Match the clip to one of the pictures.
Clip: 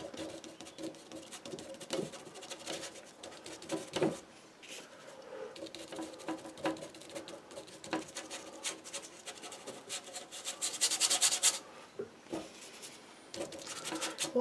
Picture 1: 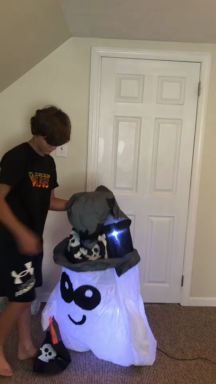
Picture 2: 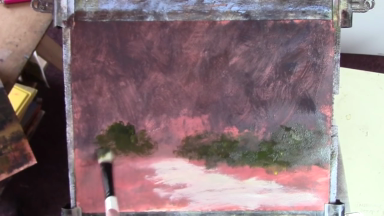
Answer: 2